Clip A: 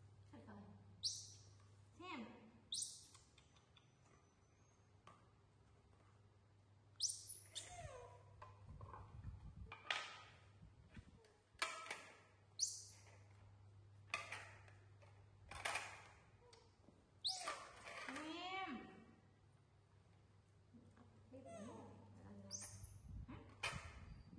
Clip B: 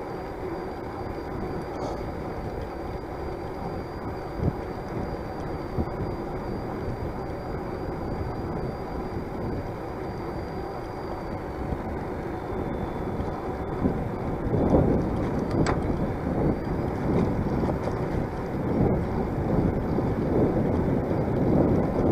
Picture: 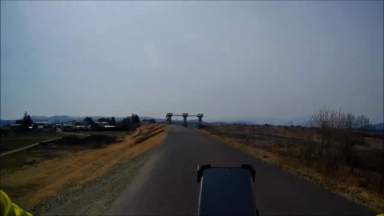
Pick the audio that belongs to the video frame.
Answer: B